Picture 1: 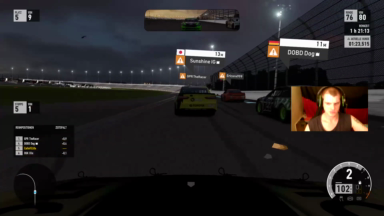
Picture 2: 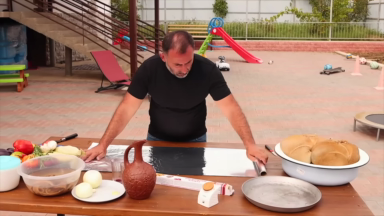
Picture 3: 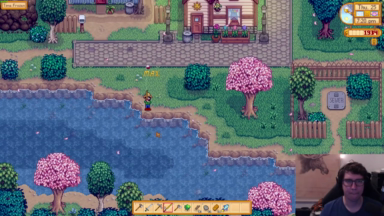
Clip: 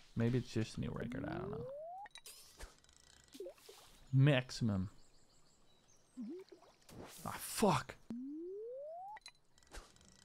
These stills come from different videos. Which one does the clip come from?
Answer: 3